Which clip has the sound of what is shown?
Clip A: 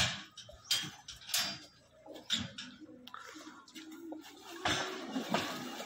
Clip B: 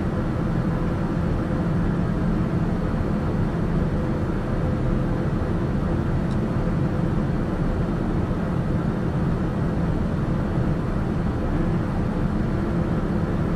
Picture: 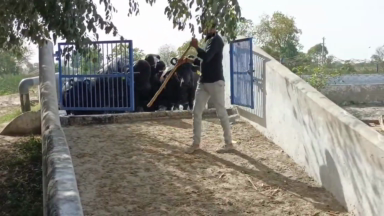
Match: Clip A